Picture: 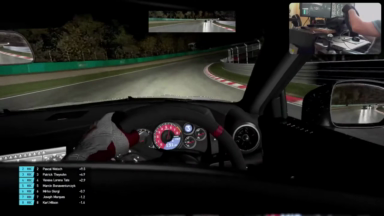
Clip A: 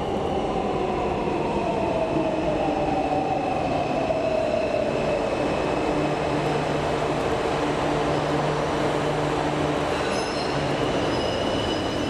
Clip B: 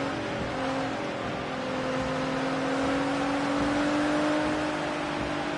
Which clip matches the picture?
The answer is B